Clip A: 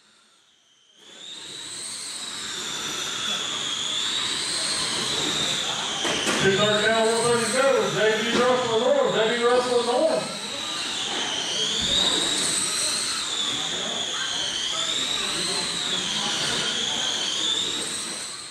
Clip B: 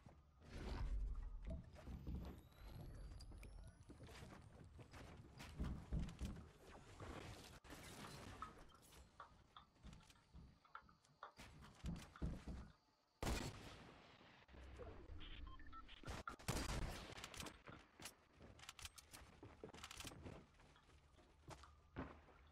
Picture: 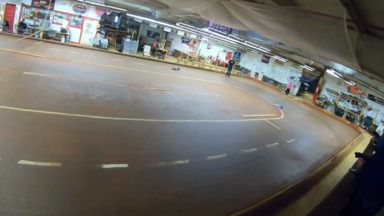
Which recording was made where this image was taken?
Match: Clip A